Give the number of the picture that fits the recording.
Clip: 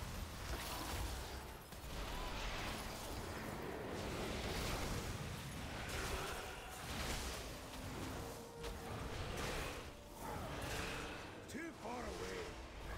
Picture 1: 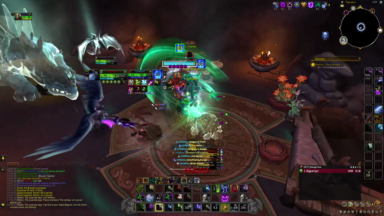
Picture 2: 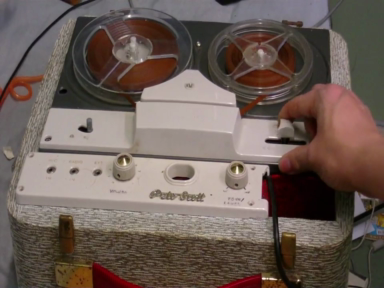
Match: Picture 1